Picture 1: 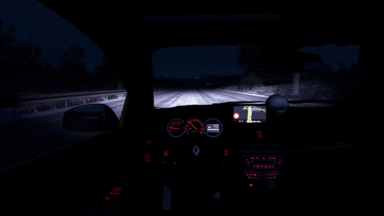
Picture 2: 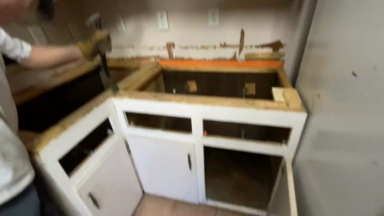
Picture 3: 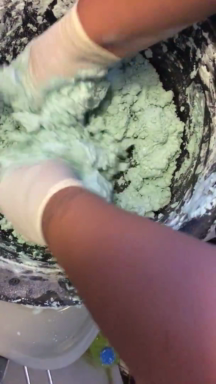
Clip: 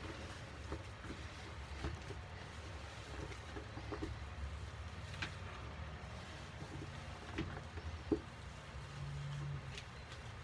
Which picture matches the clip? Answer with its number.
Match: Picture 3